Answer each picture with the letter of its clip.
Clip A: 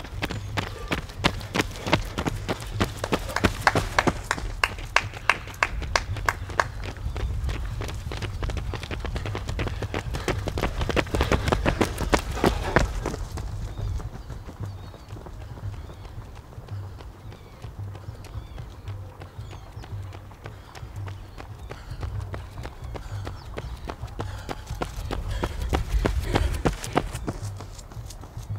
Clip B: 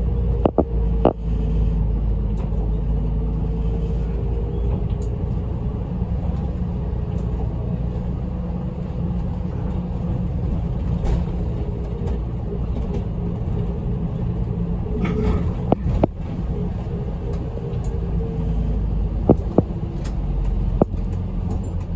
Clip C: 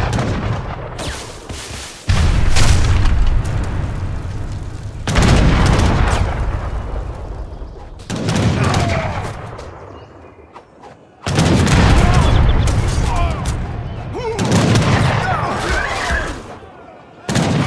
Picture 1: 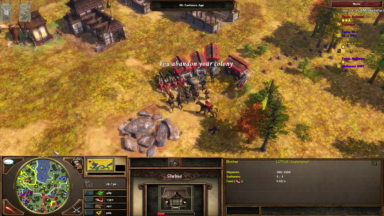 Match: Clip C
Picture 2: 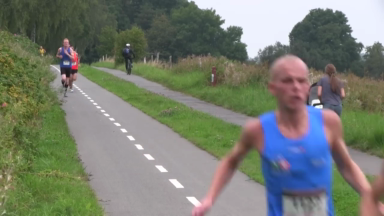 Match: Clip A